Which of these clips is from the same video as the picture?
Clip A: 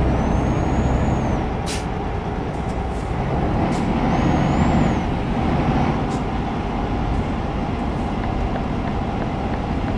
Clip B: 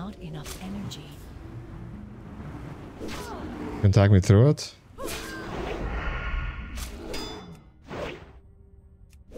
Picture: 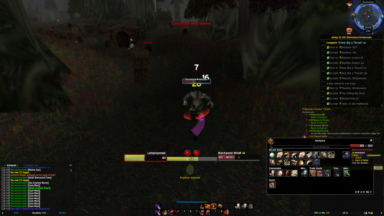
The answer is B